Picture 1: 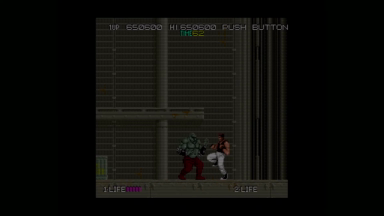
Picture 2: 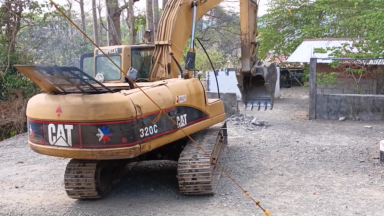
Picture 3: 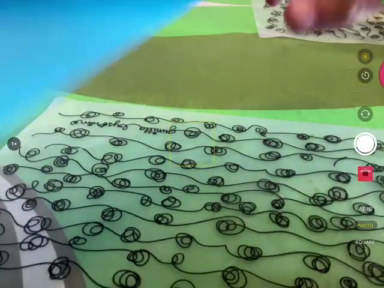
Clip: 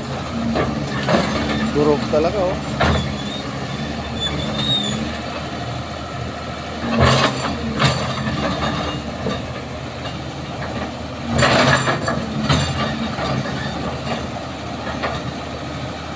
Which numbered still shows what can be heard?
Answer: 2